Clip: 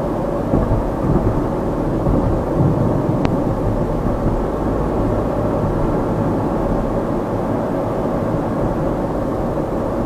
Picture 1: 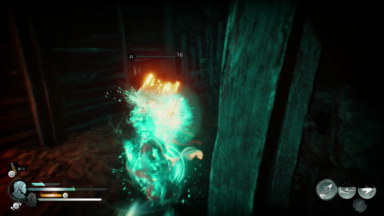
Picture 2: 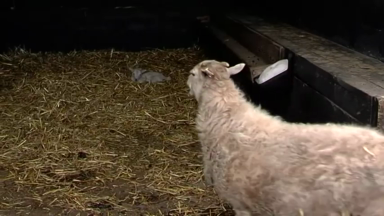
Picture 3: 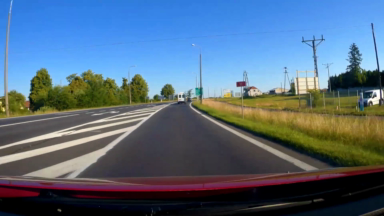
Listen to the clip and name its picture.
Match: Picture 3